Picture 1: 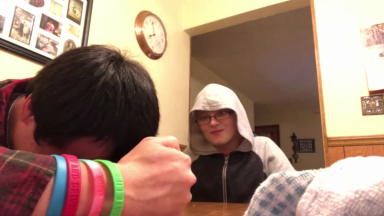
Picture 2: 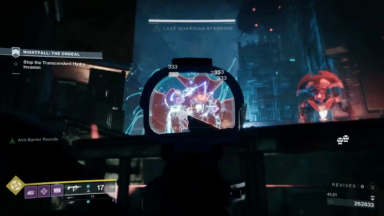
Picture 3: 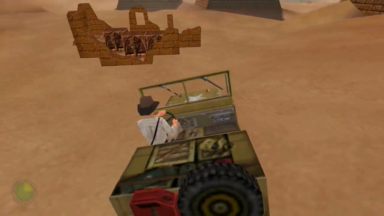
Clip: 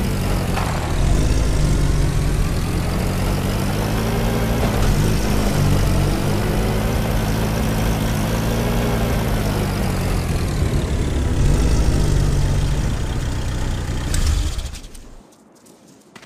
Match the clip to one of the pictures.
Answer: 3